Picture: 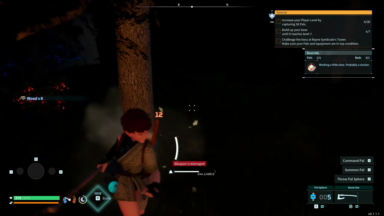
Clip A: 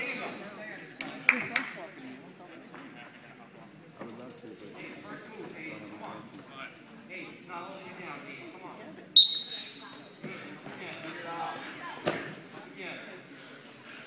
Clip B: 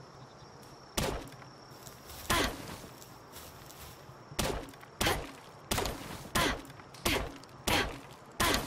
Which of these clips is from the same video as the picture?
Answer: B